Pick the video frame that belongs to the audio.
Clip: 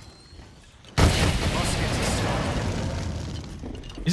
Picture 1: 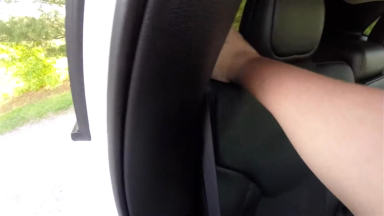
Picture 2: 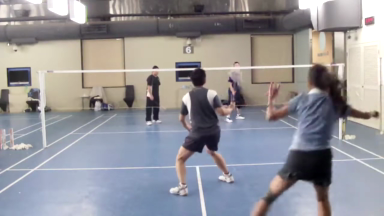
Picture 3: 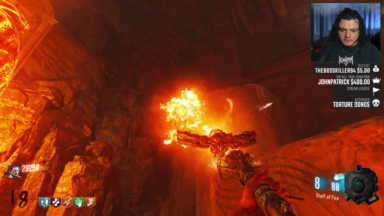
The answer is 3